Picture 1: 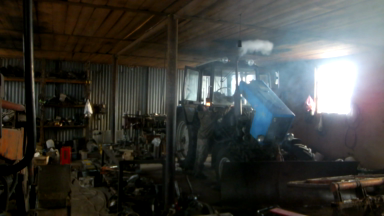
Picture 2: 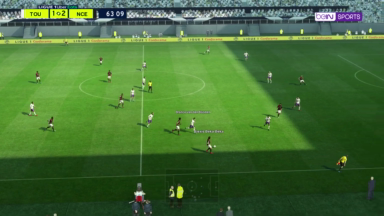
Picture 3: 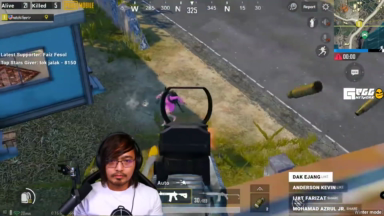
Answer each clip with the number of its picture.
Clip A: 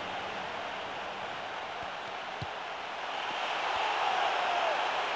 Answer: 2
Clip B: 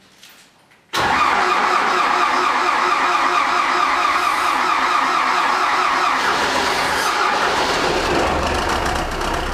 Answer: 1